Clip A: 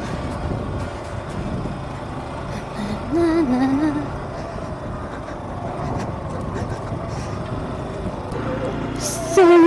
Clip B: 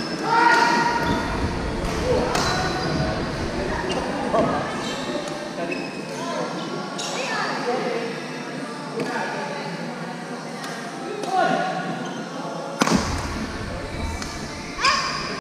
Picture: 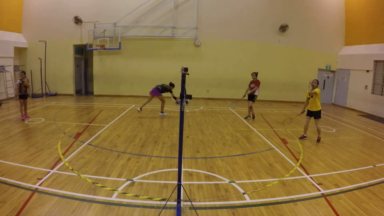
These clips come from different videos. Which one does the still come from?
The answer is B